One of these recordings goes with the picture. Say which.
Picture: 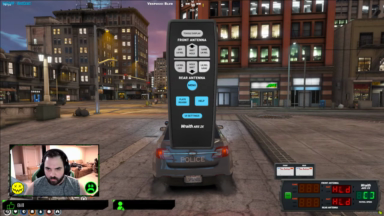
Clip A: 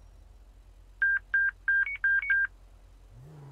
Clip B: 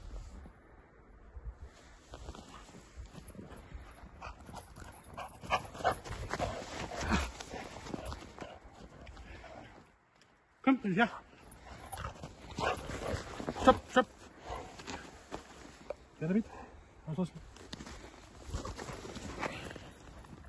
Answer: A